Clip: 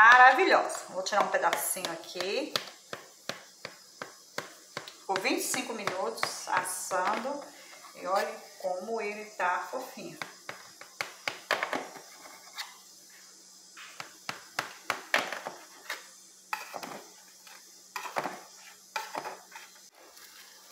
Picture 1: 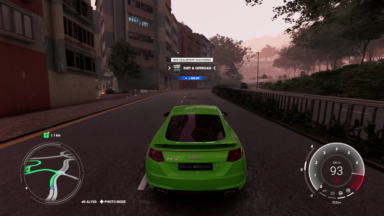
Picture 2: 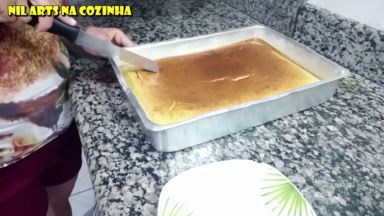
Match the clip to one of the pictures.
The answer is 2